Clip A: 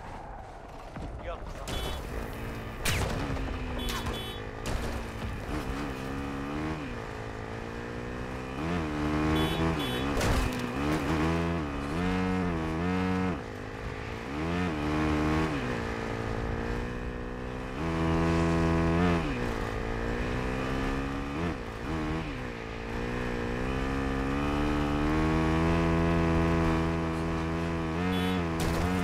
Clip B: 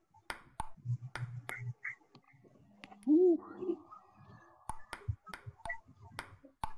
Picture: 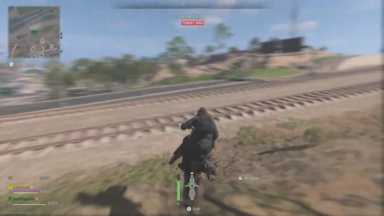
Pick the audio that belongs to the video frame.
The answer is A